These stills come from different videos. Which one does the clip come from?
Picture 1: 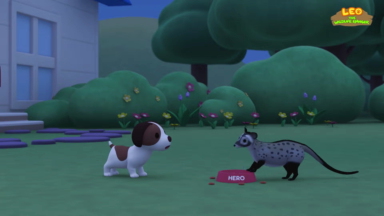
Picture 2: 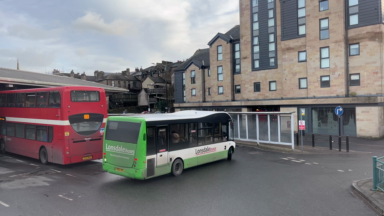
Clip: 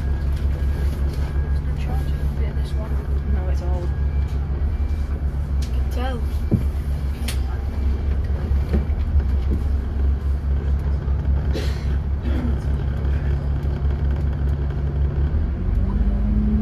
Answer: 2